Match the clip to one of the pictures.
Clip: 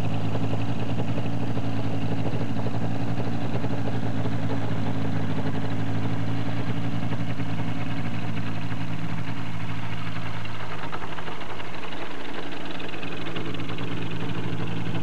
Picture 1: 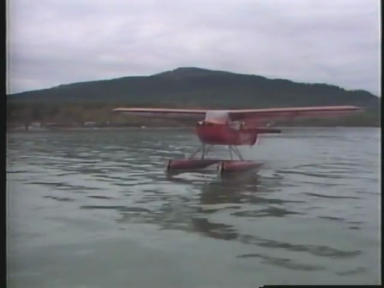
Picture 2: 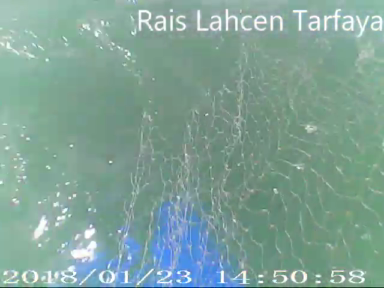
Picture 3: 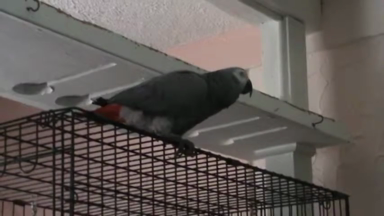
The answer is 1